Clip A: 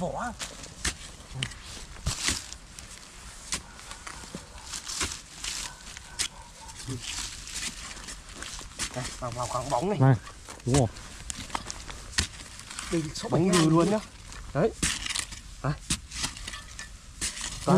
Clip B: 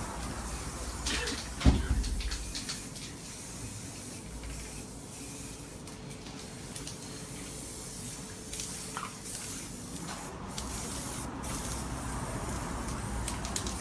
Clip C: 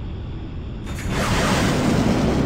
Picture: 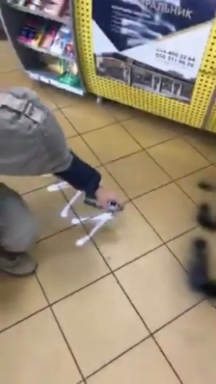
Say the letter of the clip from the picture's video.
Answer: B